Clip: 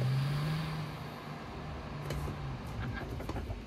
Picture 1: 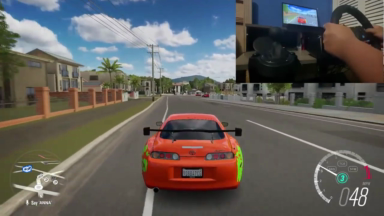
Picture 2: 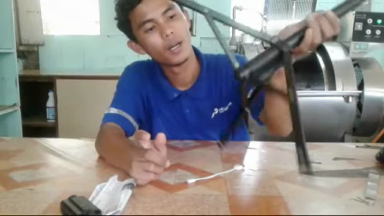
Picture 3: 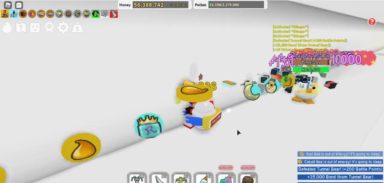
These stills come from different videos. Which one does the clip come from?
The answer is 1